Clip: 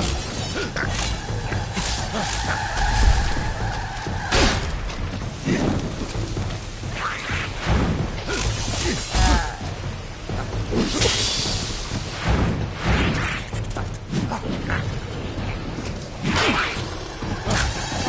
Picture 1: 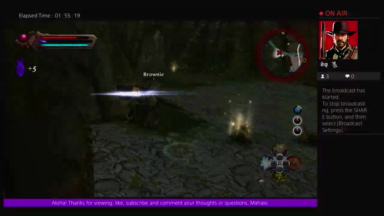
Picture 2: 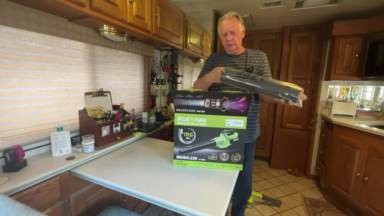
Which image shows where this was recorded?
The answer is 1